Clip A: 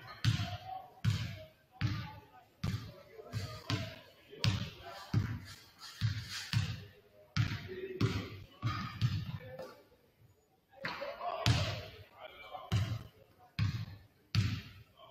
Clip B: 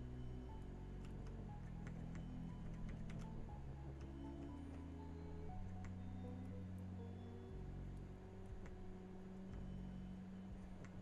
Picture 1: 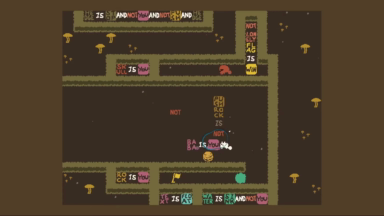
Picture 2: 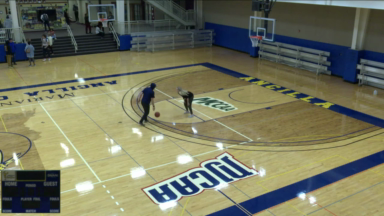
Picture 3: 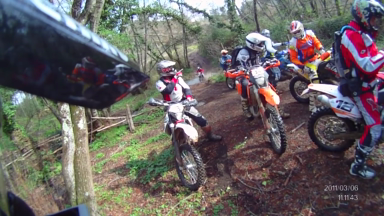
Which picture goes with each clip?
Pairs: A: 2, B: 1